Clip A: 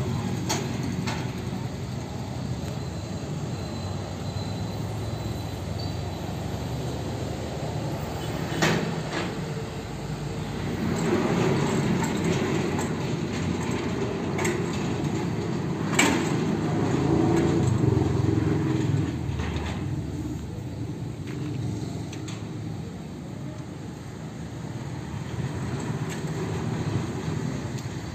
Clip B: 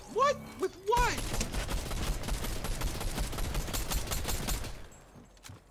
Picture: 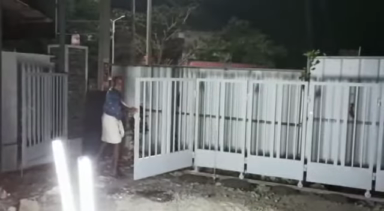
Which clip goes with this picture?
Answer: A